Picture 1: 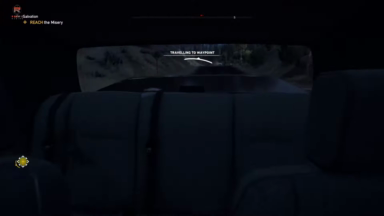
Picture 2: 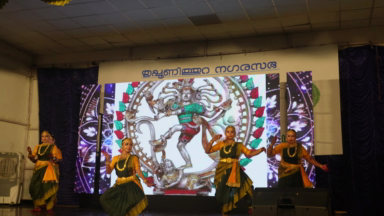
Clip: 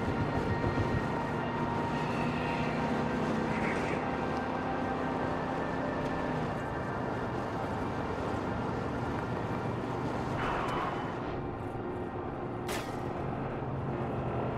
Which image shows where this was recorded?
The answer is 1